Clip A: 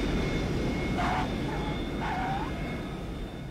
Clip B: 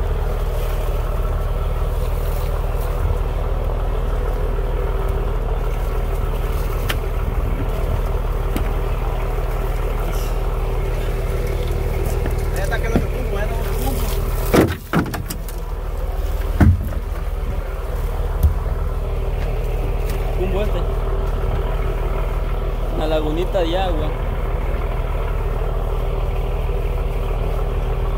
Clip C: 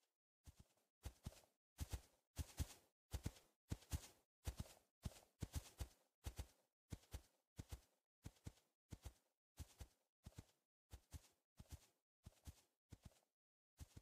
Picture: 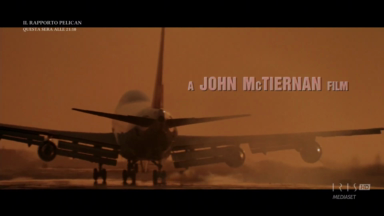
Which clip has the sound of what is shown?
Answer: A